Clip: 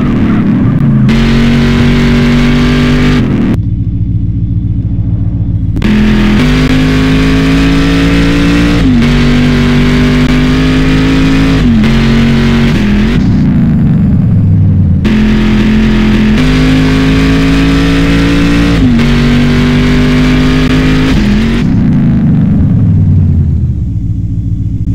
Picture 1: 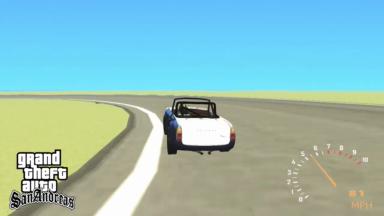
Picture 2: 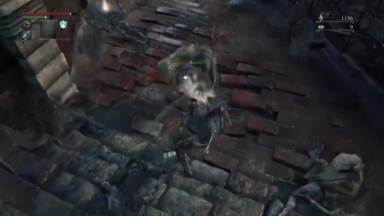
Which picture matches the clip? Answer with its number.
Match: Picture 1